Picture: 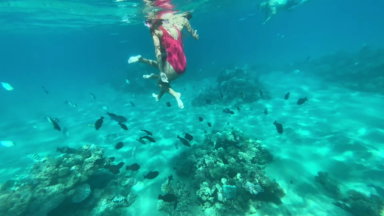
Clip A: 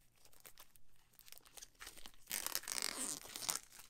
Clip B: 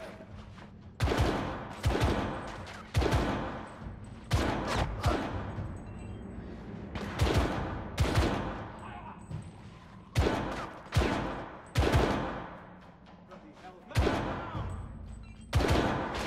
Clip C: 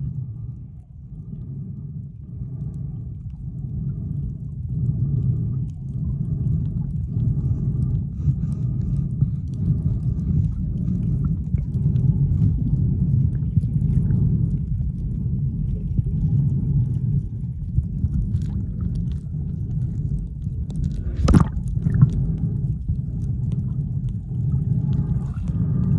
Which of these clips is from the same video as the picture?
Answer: C